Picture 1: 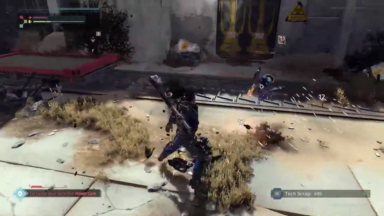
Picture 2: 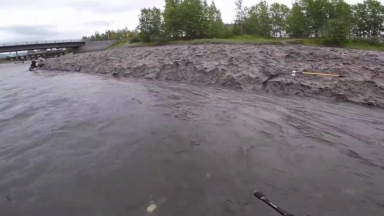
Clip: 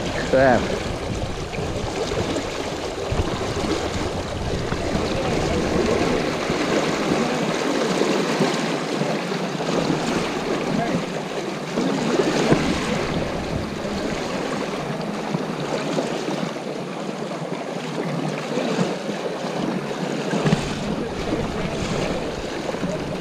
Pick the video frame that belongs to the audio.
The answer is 2